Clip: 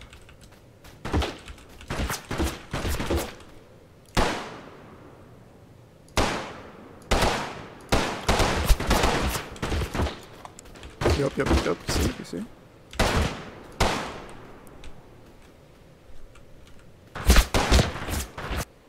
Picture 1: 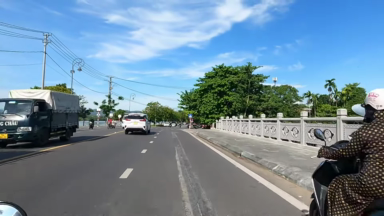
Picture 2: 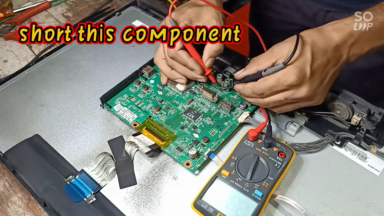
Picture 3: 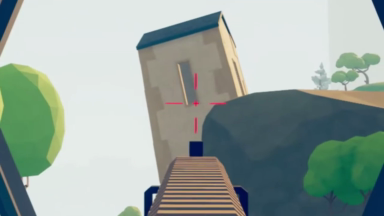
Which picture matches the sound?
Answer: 3